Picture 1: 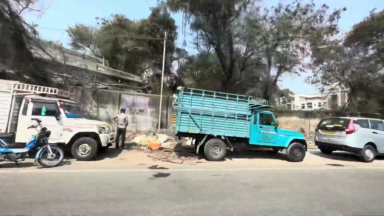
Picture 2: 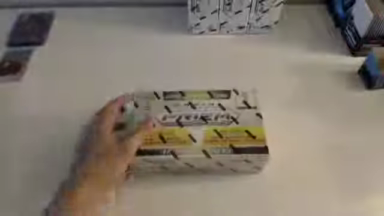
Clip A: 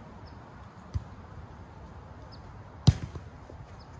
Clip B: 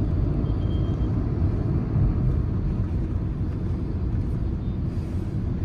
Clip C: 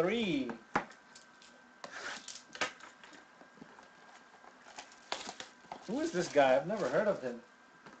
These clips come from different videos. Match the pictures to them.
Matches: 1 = B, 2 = C